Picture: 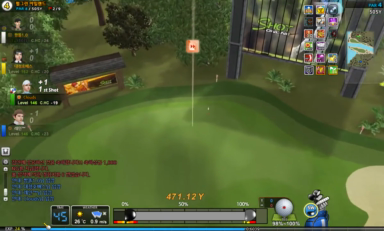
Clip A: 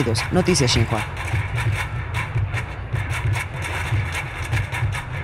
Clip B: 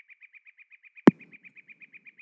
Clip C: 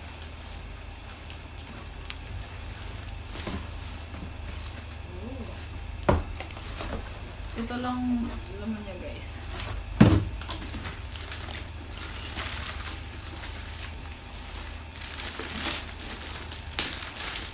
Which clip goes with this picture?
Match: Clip B